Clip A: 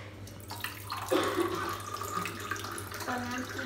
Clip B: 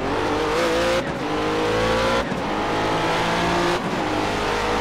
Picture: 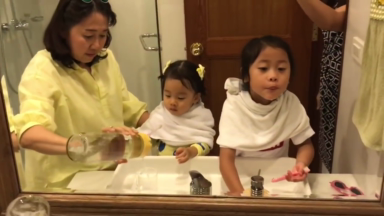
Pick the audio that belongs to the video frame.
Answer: A